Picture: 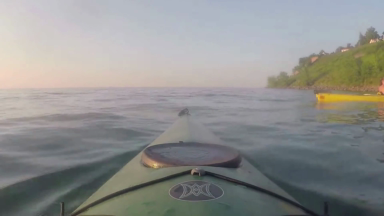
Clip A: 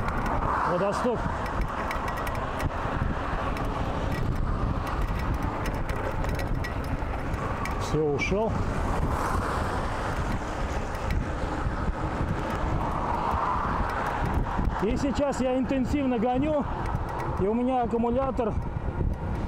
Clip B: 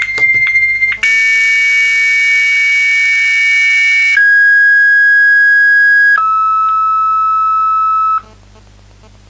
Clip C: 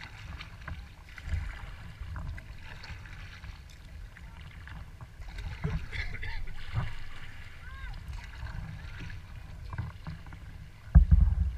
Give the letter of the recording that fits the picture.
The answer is C